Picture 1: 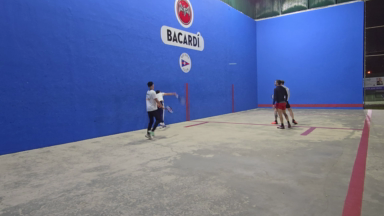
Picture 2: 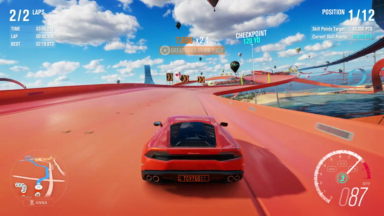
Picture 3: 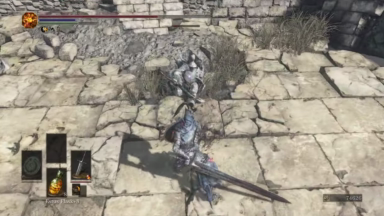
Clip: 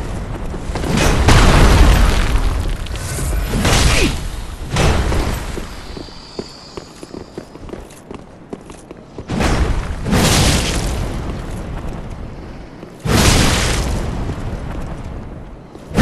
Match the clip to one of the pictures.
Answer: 3